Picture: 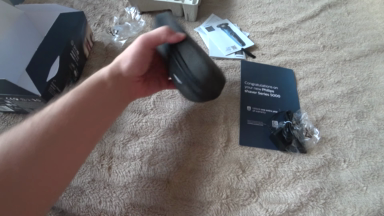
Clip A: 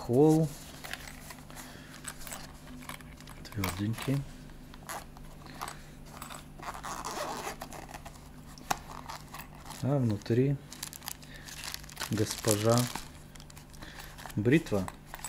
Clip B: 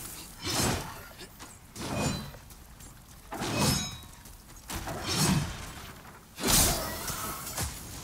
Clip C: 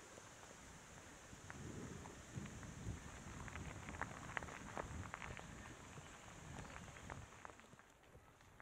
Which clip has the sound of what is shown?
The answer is A